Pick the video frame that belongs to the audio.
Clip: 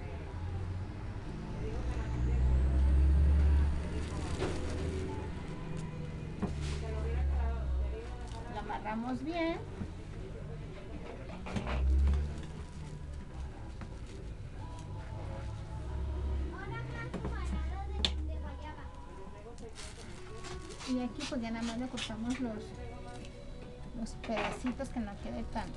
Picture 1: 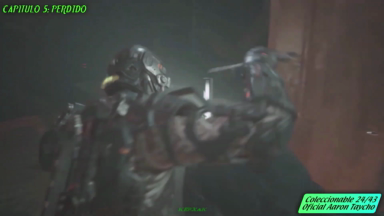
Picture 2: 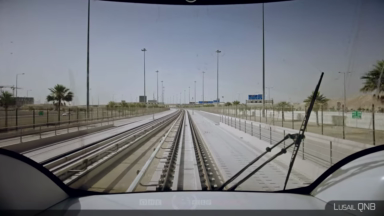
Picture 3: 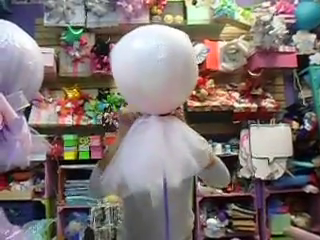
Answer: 3